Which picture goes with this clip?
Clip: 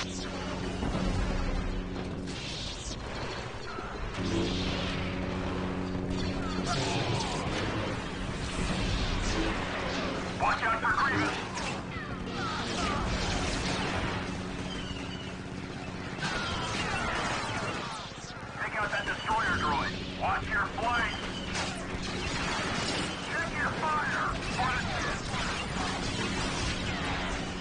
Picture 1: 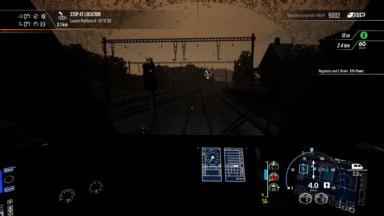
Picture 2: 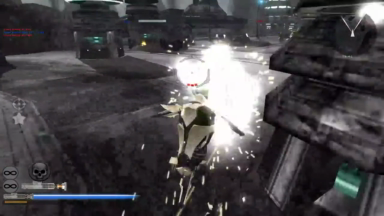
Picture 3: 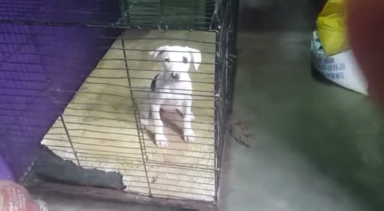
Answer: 2